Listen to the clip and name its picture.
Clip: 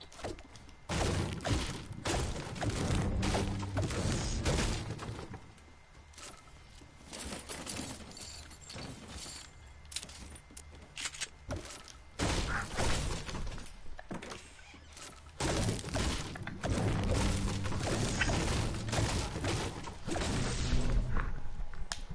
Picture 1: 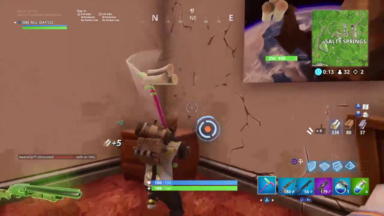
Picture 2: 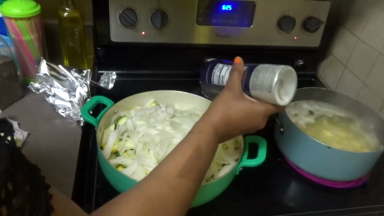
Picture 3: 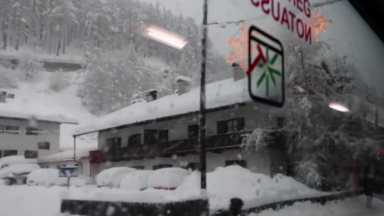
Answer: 1